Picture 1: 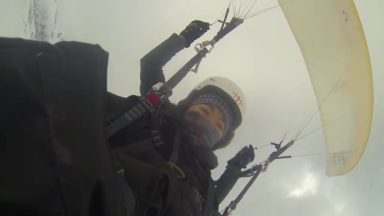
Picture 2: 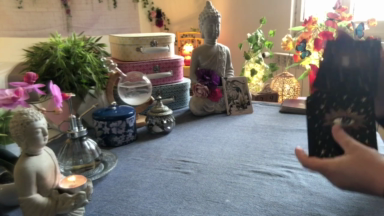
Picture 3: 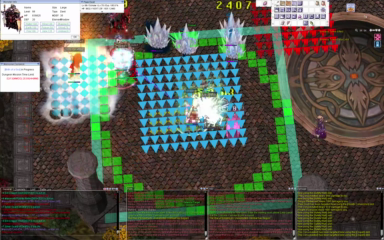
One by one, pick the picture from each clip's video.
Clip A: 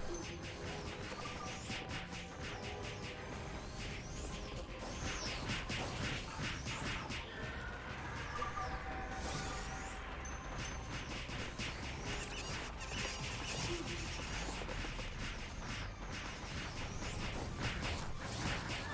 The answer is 3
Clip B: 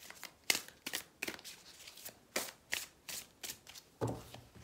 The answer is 2